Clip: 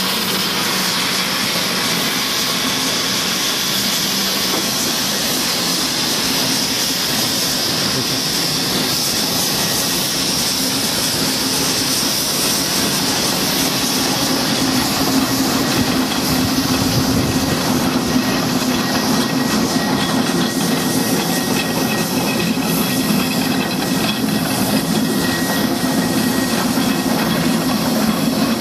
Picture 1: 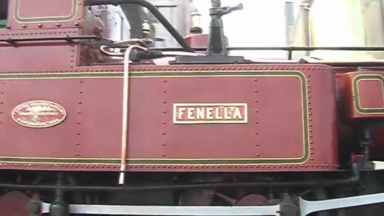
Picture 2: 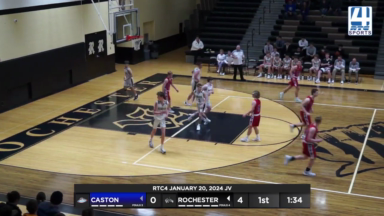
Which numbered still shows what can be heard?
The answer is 1